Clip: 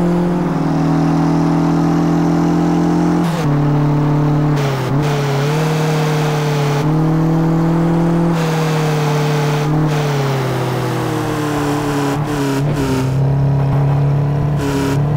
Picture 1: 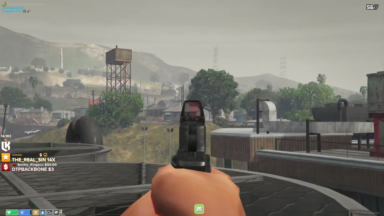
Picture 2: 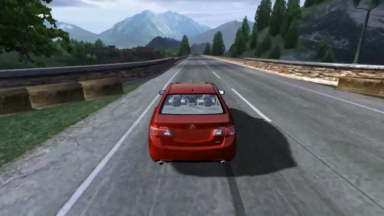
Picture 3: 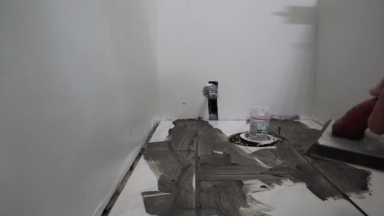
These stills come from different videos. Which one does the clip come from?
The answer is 2